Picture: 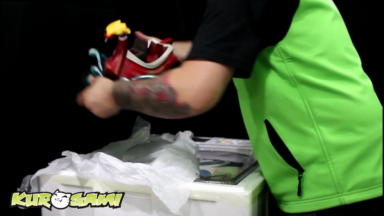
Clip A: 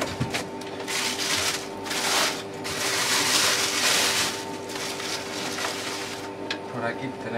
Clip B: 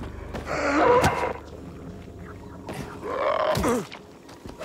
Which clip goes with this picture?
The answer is A